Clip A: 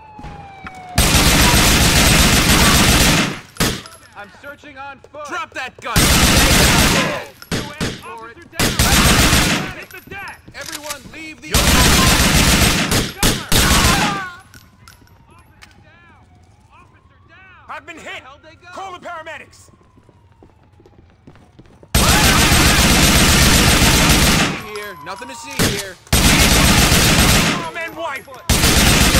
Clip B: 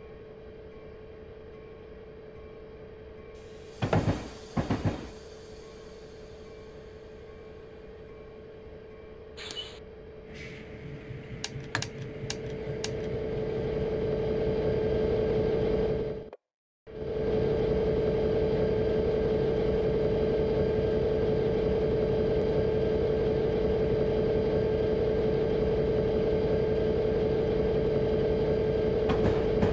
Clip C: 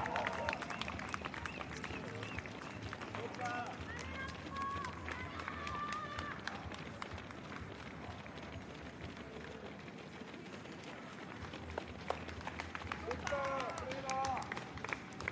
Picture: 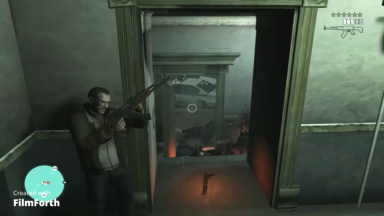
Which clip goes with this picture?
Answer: A